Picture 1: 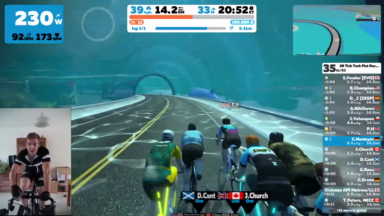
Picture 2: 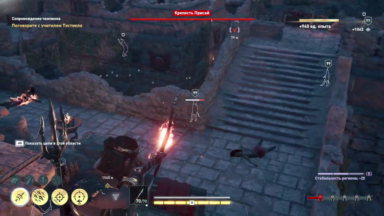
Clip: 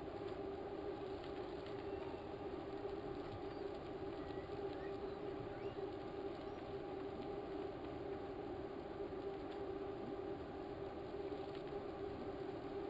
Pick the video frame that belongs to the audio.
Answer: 1